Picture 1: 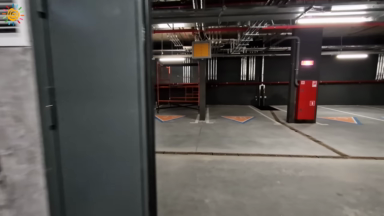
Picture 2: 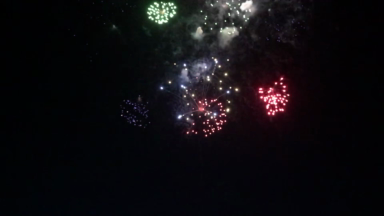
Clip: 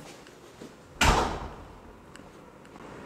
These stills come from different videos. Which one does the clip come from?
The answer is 1